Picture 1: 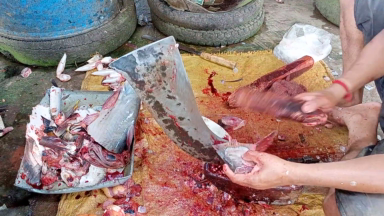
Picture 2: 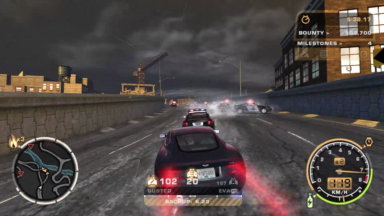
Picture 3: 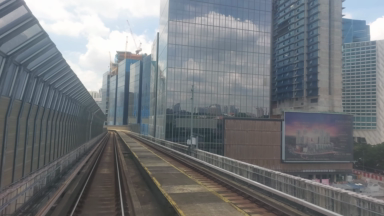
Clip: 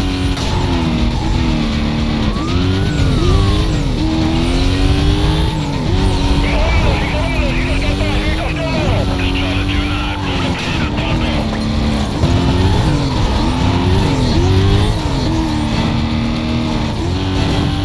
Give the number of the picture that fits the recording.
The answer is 2